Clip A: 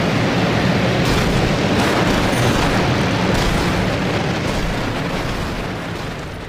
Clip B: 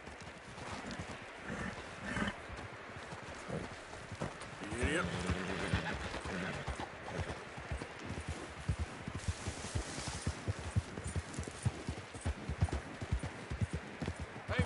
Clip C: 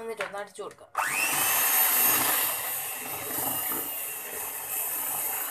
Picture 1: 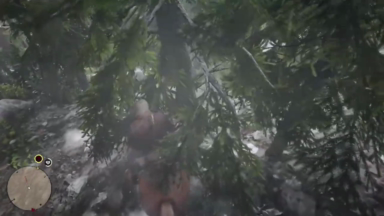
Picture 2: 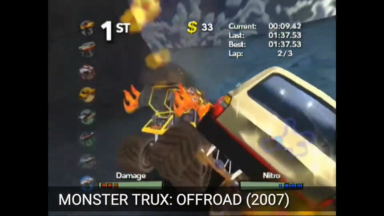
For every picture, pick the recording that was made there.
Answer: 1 B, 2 A